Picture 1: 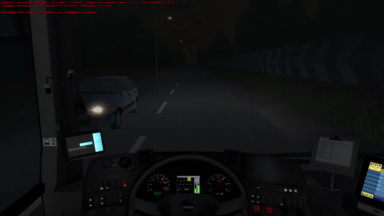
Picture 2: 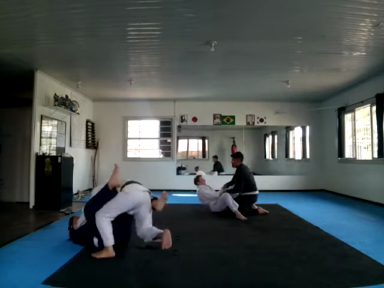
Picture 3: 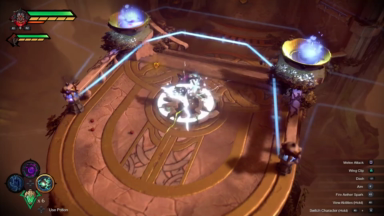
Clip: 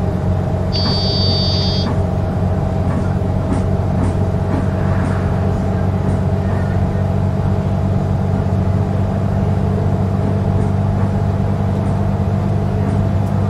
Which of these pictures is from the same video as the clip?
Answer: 1